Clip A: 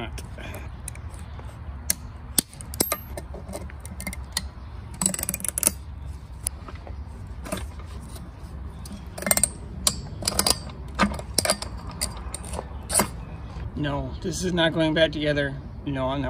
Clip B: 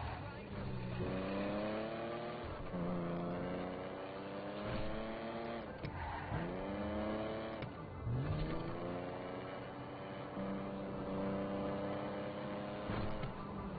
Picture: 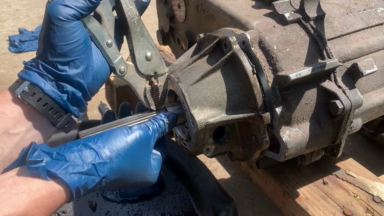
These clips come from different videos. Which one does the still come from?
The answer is A